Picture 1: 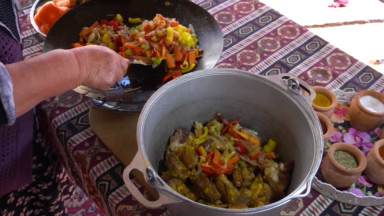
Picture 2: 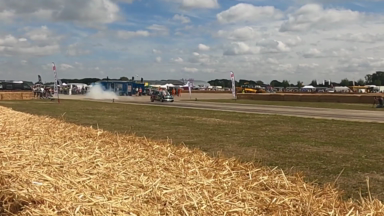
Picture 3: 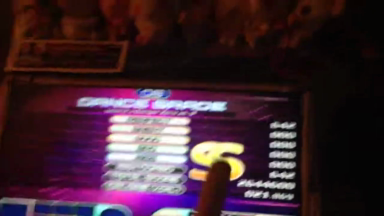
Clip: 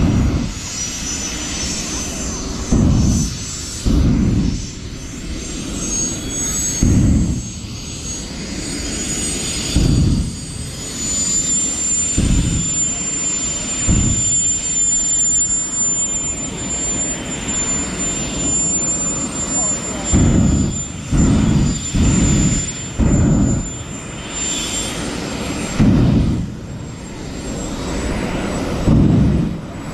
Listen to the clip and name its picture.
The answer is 2